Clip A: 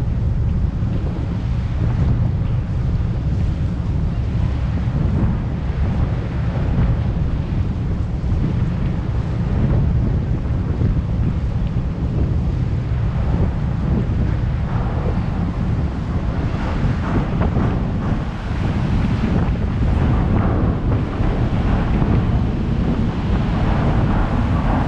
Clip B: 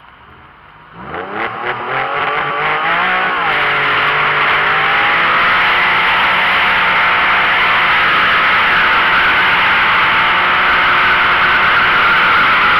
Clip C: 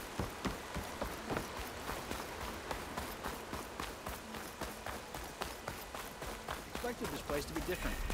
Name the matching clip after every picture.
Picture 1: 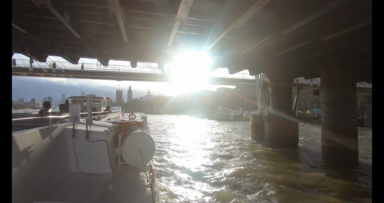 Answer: A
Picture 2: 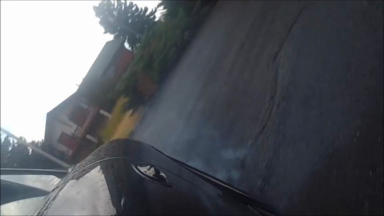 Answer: B